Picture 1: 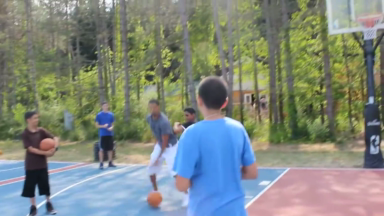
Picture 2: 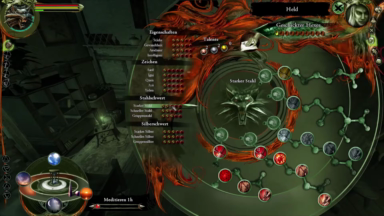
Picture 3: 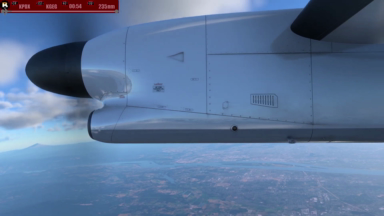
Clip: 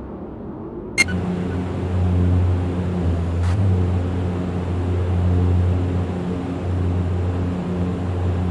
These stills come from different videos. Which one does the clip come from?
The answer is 3